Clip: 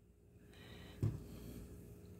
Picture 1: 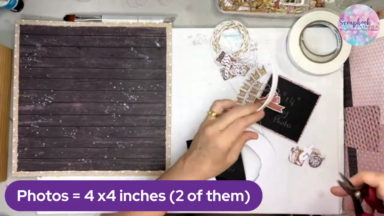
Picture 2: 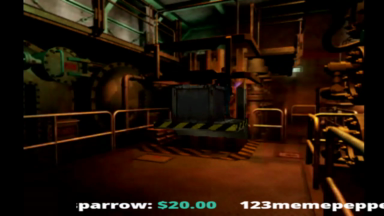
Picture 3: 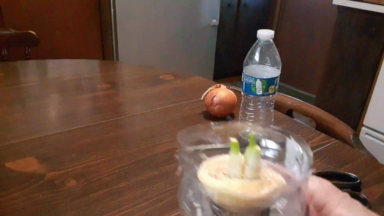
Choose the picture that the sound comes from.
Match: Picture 3